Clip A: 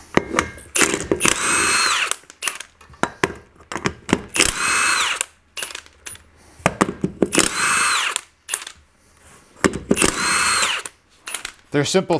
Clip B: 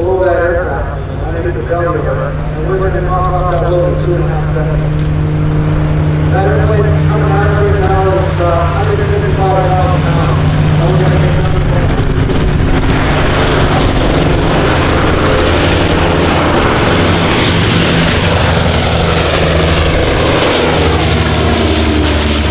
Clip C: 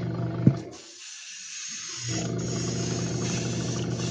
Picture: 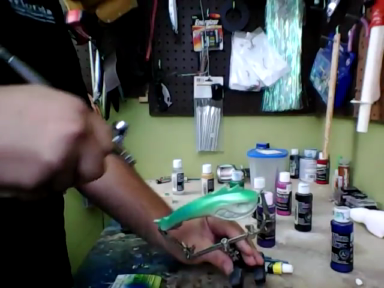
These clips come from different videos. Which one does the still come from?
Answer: C